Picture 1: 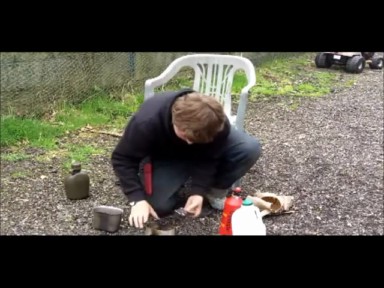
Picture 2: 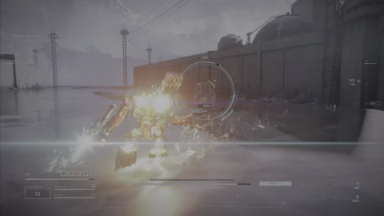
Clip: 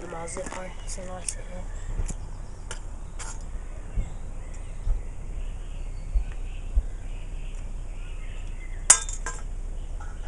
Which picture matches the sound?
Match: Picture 1